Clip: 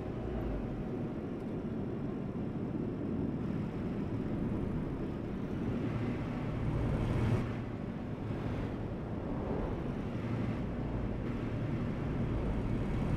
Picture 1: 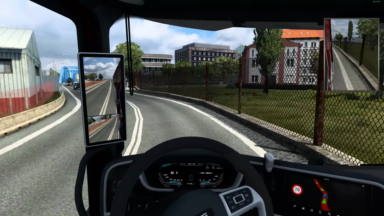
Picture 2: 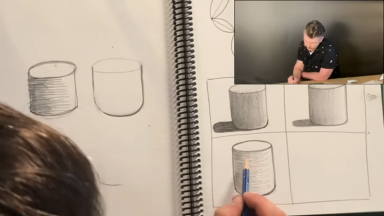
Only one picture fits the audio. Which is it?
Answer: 1